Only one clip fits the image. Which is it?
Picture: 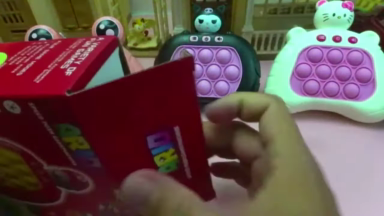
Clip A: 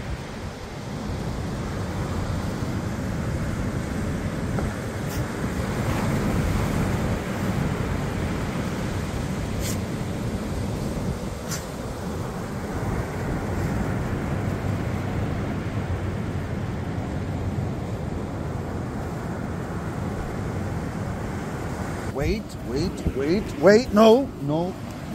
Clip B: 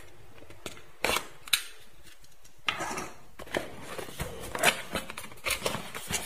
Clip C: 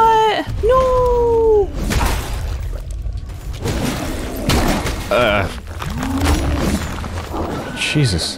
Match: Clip B